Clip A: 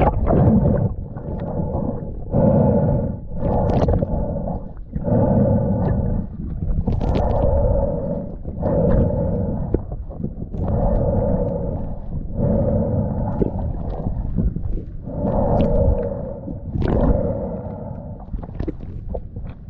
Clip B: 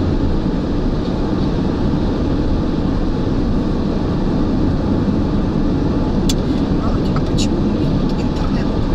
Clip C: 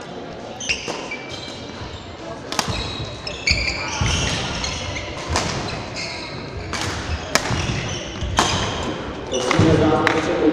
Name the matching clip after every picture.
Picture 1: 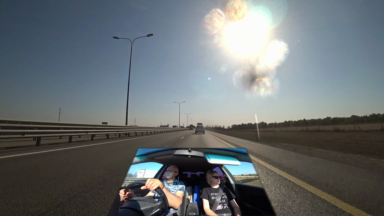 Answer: B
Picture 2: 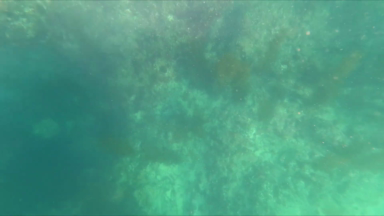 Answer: A